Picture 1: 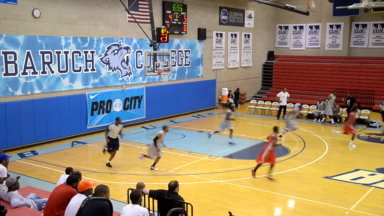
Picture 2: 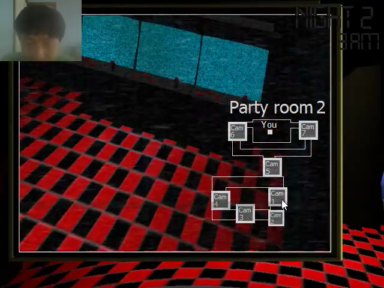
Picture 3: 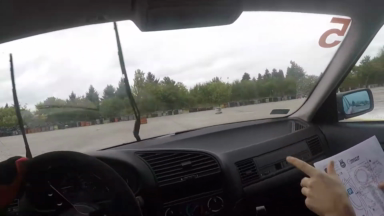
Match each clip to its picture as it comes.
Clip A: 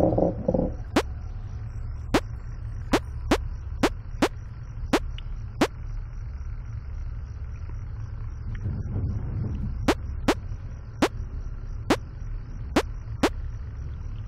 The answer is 2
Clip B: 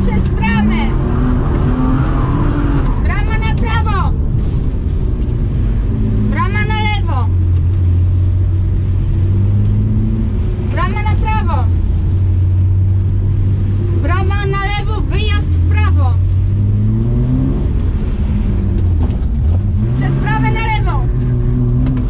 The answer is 3